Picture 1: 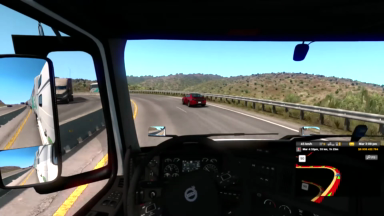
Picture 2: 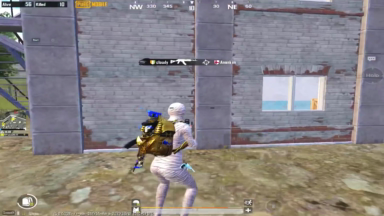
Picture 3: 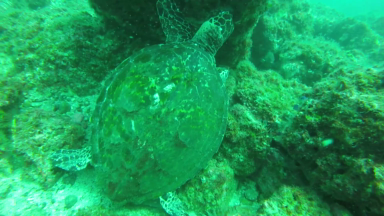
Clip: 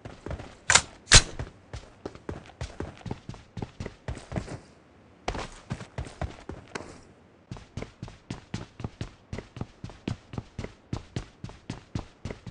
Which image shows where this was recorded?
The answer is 2